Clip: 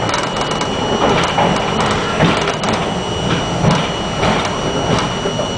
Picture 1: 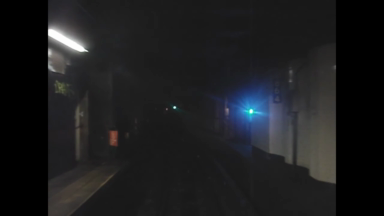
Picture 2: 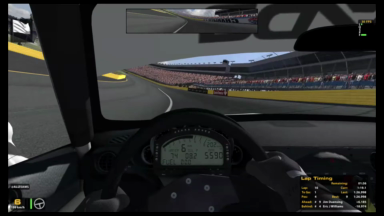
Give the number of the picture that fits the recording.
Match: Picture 1